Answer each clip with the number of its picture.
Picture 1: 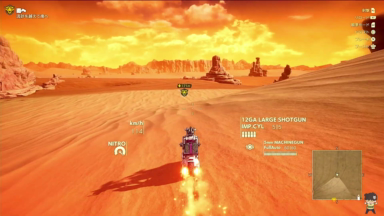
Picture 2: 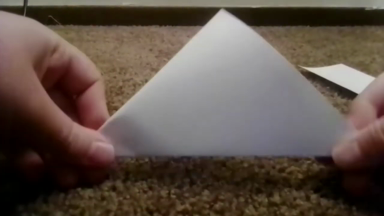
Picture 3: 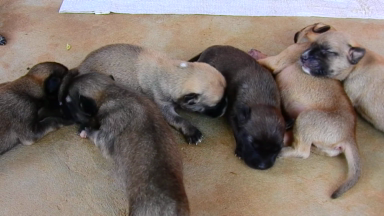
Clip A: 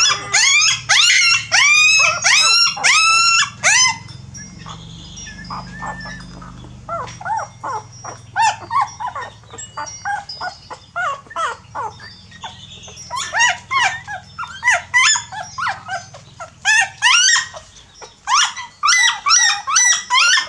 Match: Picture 3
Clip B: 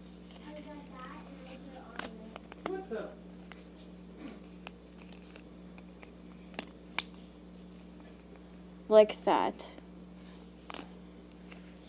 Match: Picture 2